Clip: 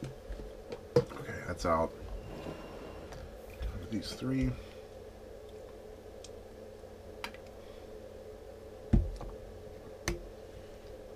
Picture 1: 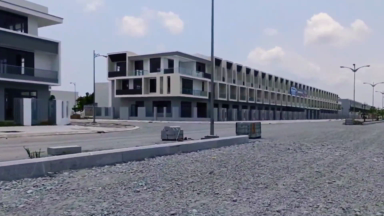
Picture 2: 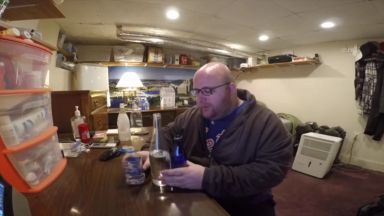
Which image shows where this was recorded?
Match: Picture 2